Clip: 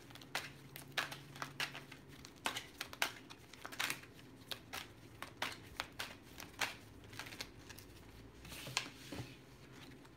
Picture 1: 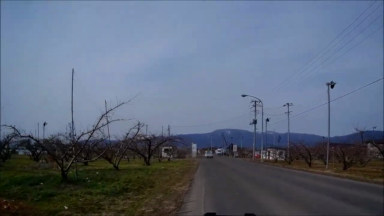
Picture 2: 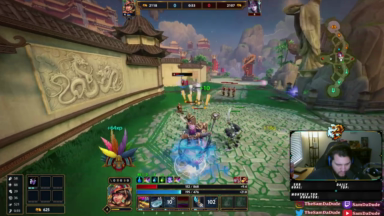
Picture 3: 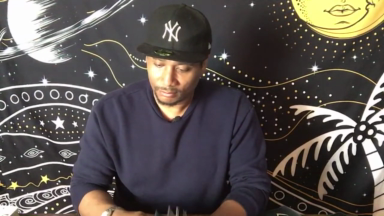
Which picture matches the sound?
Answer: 3